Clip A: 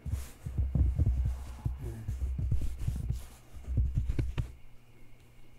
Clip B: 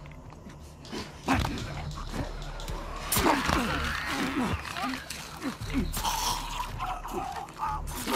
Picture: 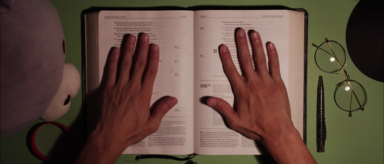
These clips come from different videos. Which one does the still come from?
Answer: A